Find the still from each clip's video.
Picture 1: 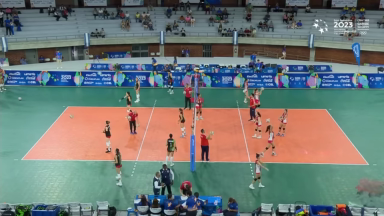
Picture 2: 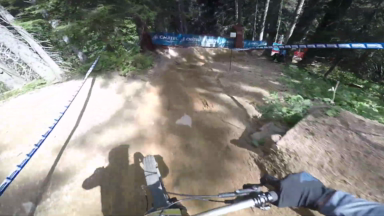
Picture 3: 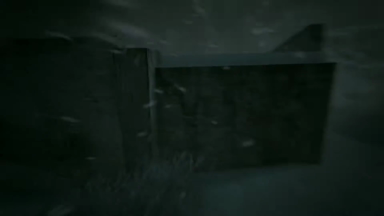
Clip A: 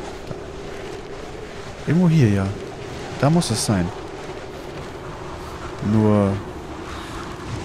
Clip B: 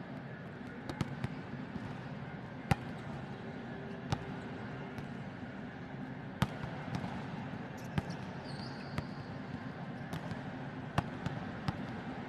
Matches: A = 3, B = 1